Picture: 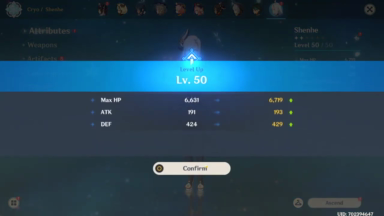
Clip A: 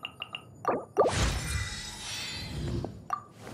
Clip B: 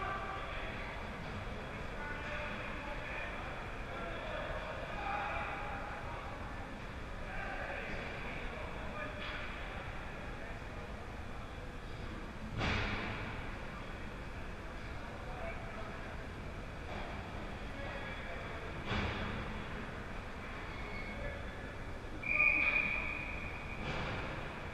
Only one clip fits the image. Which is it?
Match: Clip A